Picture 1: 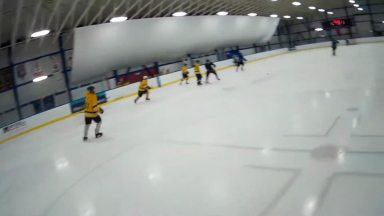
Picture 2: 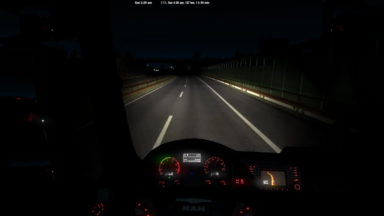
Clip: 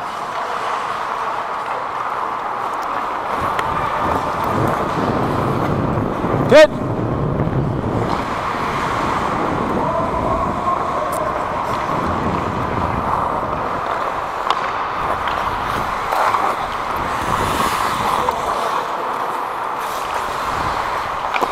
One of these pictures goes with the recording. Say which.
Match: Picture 1